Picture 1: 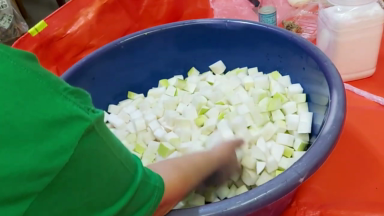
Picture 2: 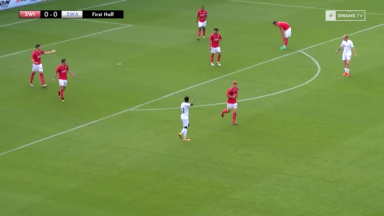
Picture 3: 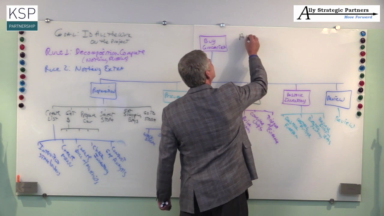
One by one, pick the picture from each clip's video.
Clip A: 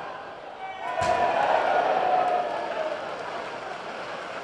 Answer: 2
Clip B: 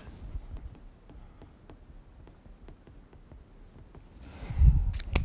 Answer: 3